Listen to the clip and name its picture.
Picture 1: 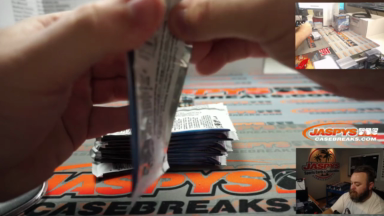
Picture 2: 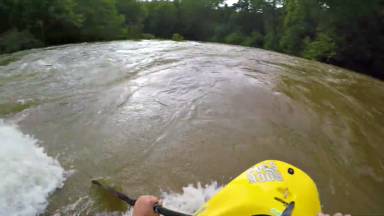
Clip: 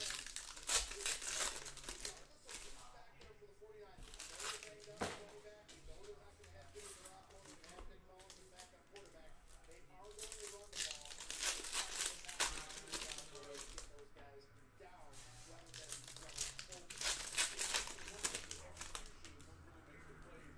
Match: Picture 1